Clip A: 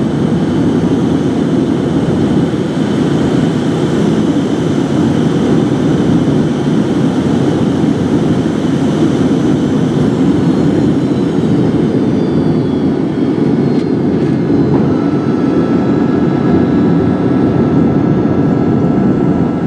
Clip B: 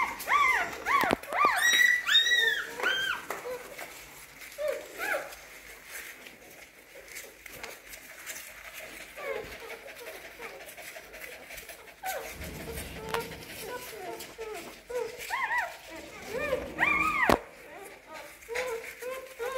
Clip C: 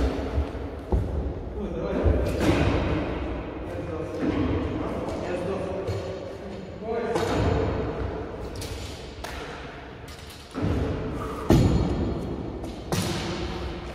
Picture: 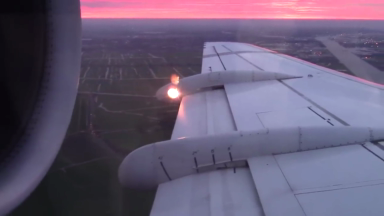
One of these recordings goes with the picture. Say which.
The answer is A